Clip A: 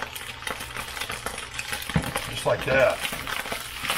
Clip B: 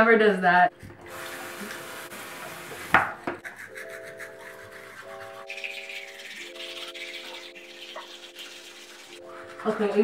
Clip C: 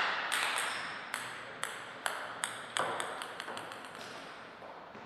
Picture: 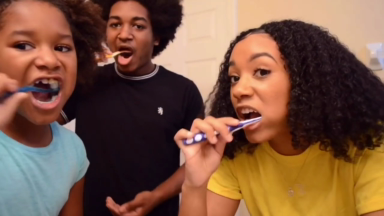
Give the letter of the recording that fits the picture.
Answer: B